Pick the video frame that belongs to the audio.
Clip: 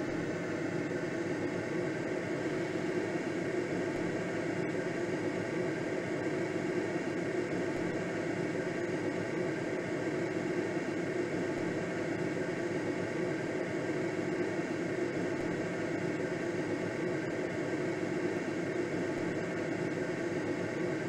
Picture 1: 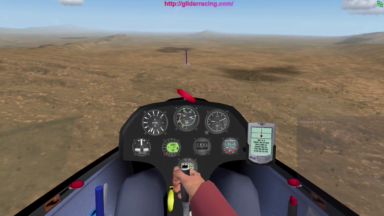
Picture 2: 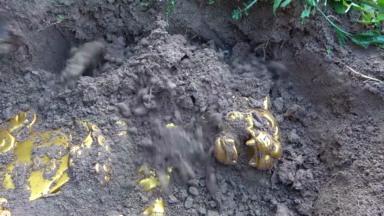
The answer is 1